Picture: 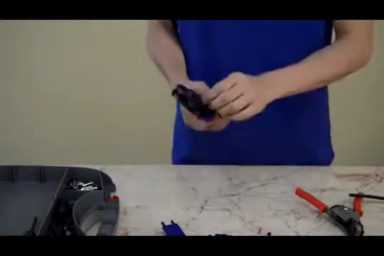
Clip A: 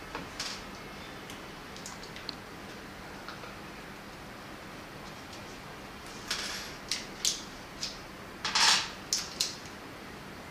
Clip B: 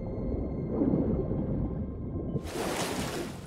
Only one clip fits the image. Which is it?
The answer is A